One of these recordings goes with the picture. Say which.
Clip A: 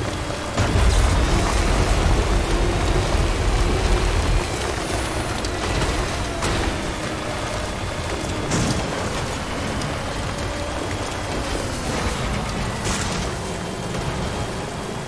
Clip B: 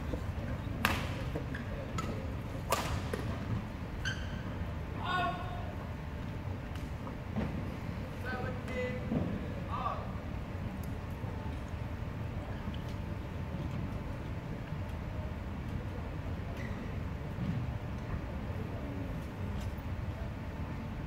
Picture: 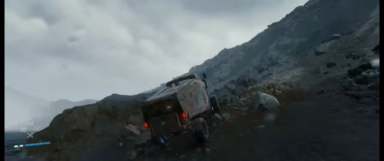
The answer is A